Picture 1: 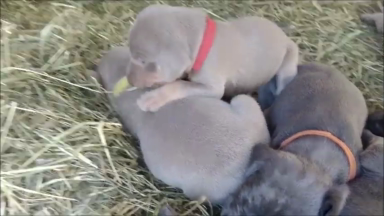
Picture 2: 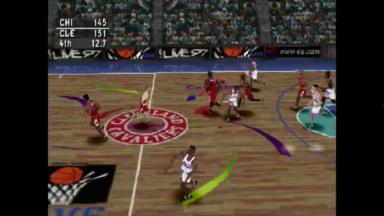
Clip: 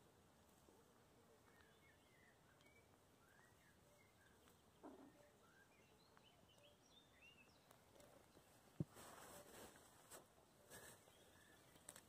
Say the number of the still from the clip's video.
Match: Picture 1